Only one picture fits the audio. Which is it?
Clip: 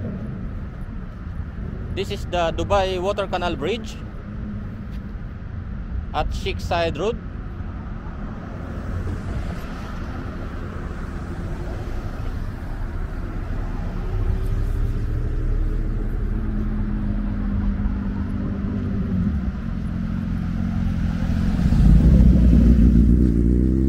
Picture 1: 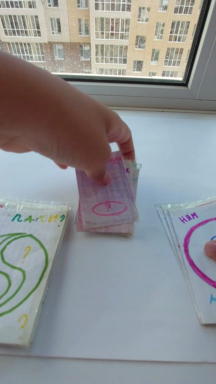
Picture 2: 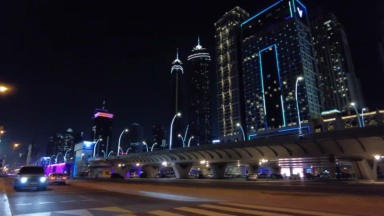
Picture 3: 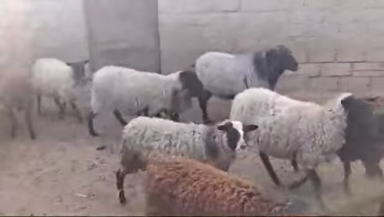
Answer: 2